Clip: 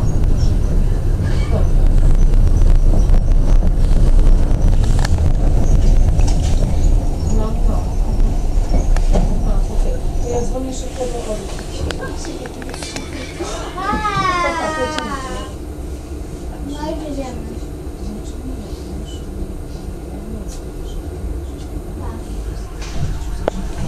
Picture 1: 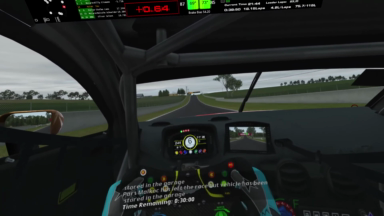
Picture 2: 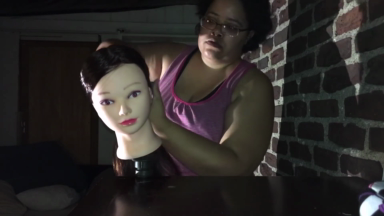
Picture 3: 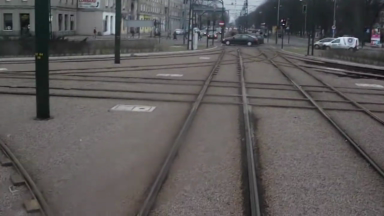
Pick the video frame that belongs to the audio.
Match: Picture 3